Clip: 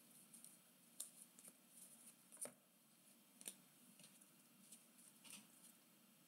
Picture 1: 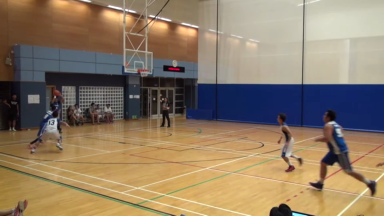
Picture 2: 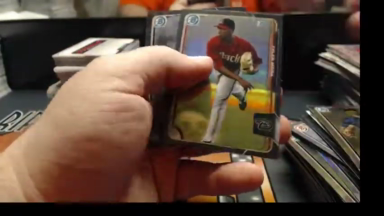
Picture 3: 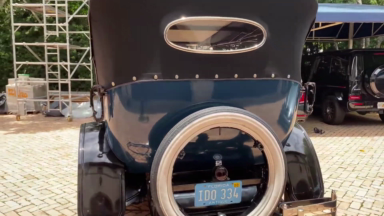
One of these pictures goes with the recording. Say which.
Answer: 2